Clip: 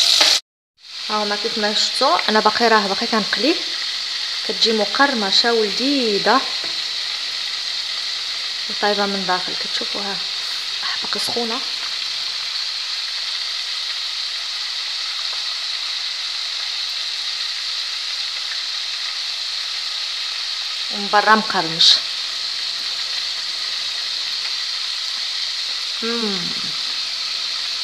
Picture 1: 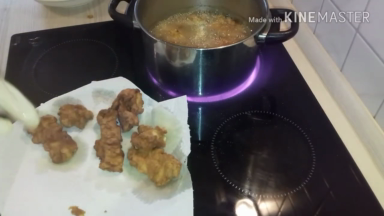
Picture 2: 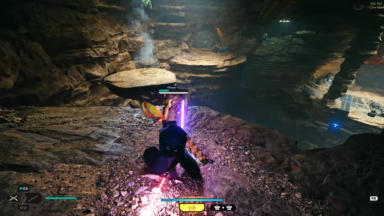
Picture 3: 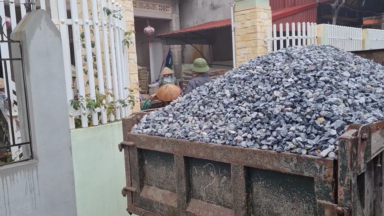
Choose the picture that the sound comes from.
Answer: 1